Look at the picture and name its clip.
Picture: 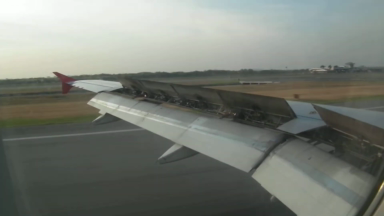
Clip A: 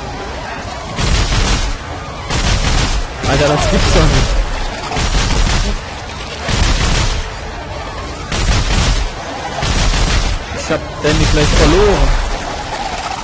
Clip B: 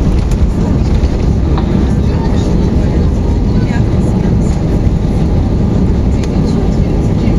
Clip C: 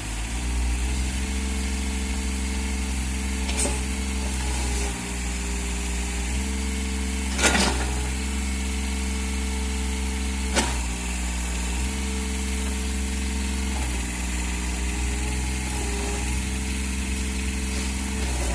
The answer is B